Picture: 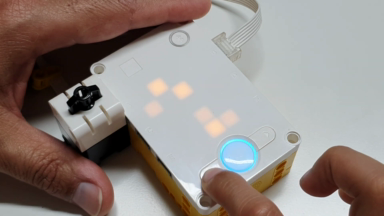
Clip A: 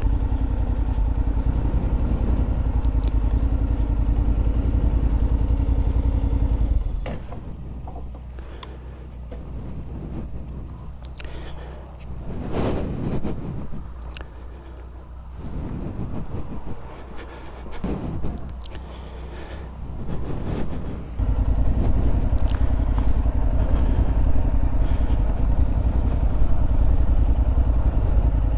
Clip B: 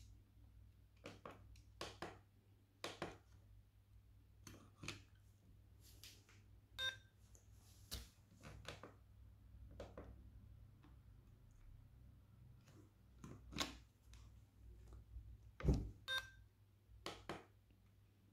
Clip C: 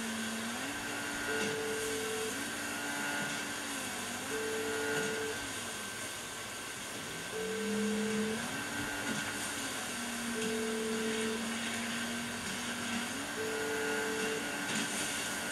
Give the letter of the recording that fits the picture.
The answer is B